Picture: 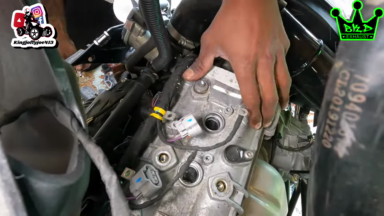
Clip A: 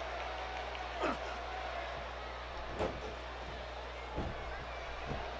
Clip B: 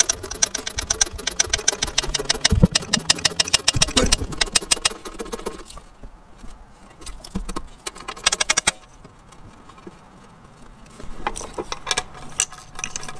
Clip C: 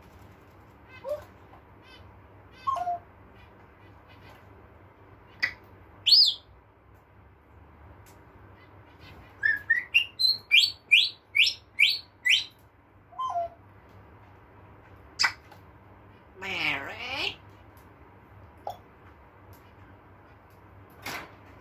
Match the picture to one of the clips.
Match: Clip B